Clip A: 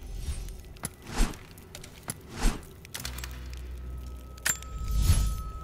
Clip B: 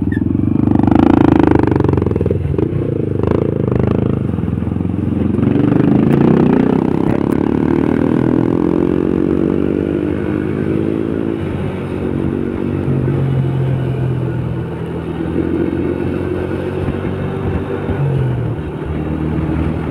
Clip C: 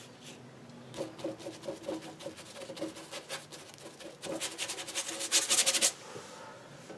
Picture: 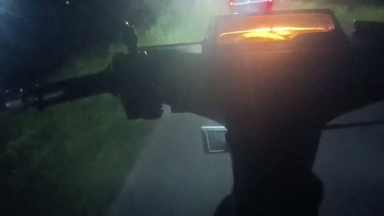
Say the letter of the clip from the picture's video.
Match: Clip B